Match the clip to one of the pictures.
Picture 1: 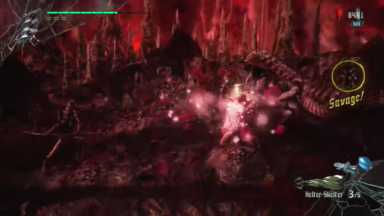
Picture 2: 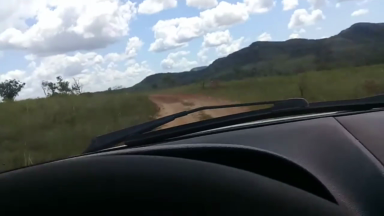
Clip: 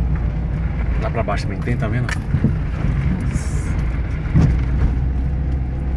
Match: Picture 2